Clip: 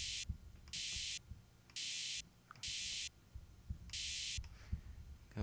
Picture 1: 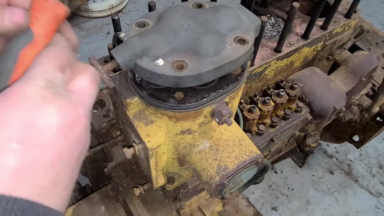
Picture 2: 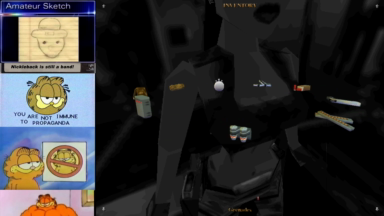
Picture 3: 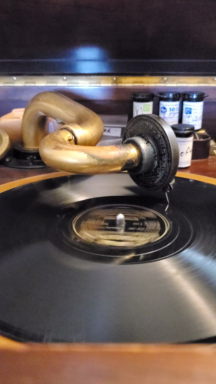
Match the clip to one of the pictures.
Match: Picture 2